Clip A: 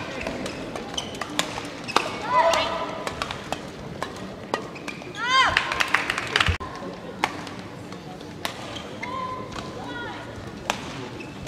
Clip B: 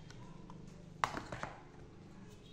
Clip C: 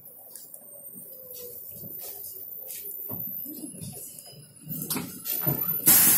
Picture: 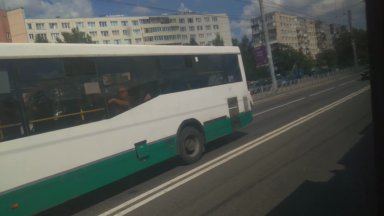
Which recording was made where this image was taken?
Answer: C